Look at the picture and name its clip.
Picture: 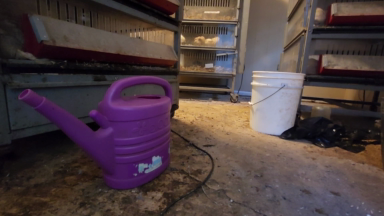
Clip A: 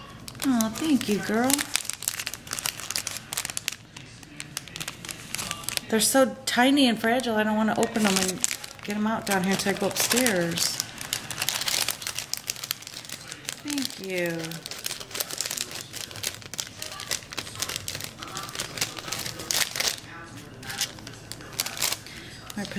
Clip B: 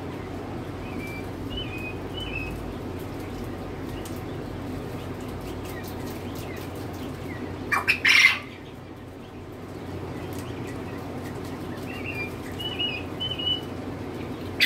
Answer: B